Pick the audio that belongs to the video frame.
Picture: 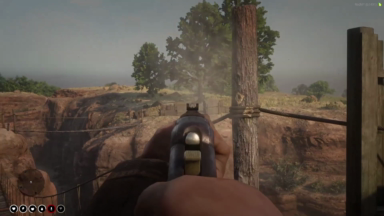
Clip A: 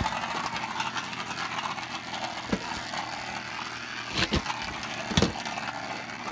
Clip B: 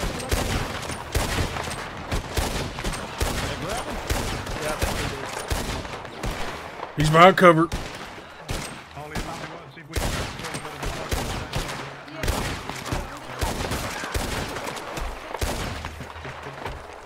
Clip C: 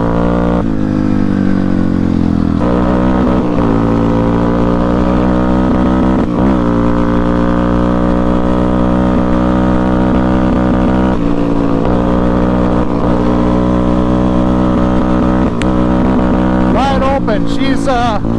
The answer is B